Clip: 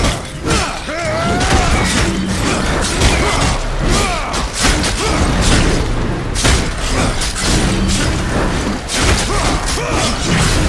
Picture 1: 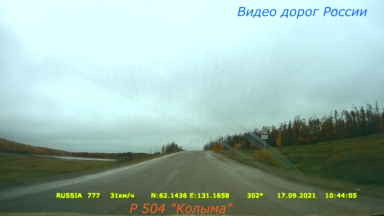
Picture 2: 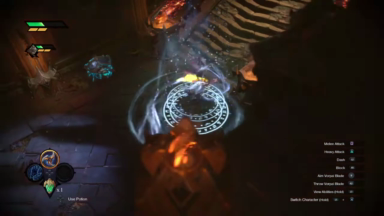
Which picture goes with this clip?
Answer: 2